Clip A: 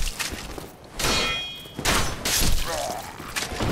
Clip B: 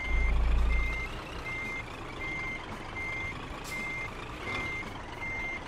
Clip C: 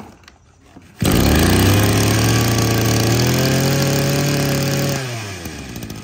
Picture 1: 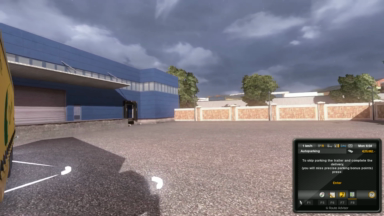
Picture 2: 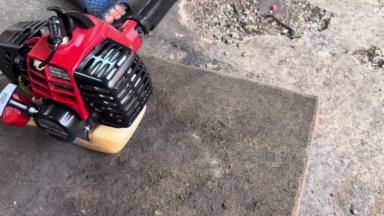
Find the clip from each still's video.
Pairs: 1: B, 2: C